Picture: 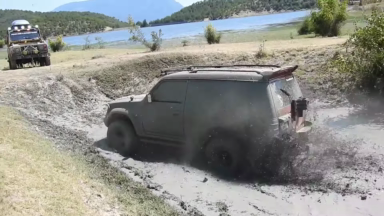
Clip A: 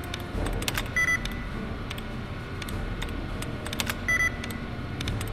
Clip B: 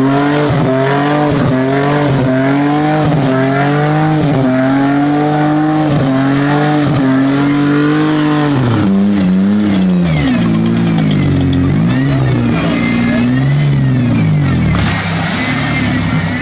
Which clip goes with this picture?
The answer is B